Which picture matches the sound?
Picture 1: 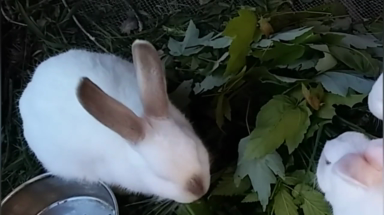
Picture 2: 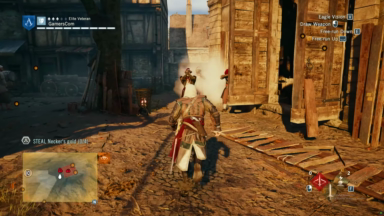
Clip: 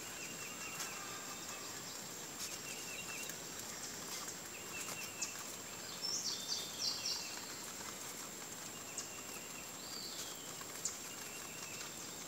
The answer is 1